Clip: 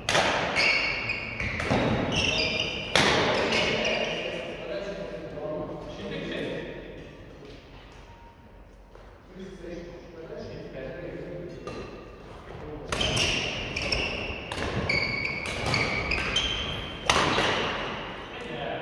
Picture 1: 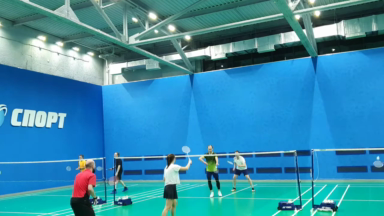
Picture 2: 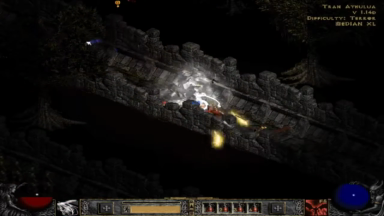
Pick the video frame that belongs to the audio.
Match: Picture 1